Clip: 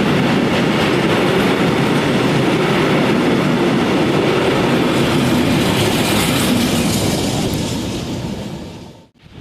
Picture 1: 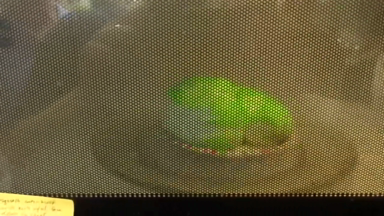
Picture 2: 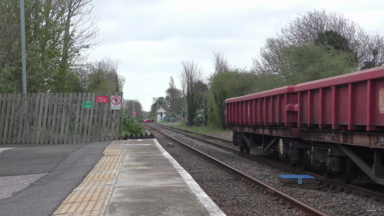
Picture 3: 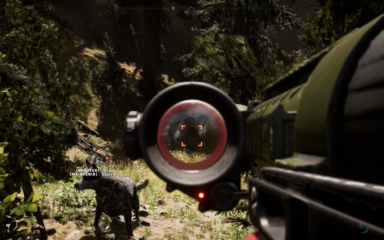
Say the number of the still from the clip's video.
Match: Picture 2